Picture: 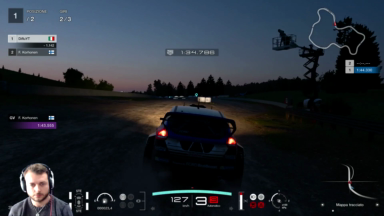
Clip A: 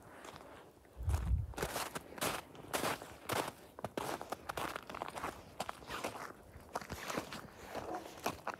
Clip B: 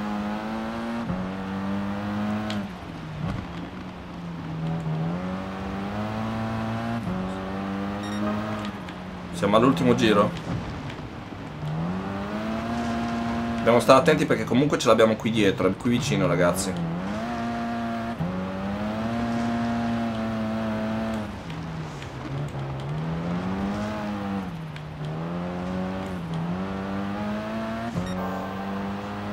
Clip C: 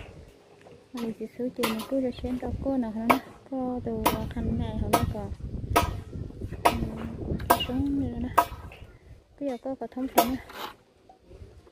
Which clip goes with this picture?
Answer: B